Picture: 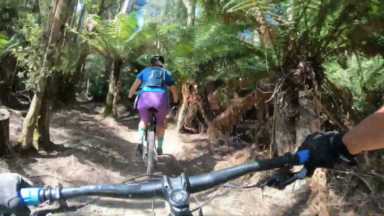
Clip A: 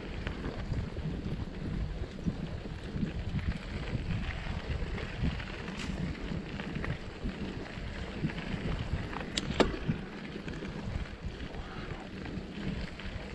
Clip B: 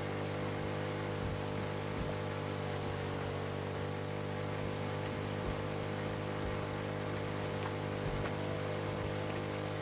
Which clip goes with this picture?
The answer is A